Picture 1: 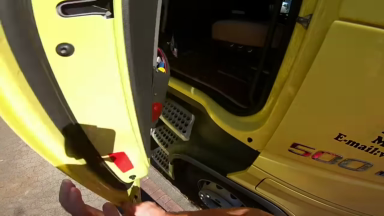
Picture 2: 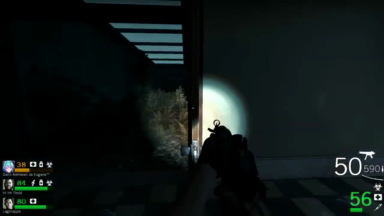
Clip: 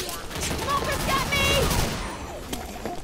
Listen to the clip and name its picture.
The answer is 2